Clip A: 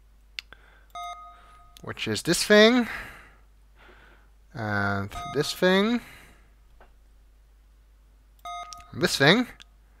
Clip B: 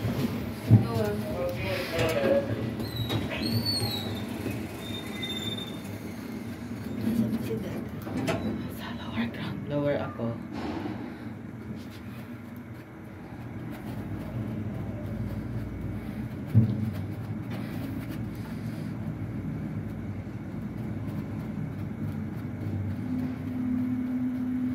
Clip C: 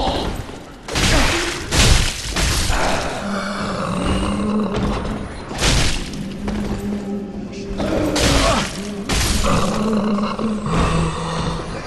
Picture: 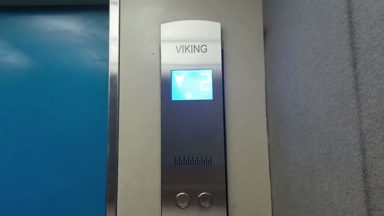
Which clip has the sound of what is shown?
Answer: B